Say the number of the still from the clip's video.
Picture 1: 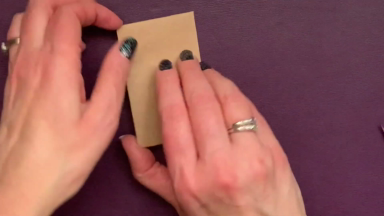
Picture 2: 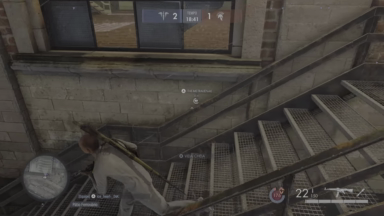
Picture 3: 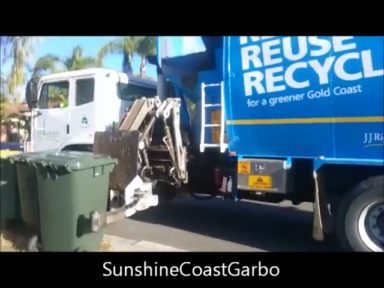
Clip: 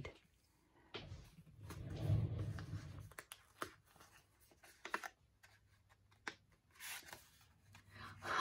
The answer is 1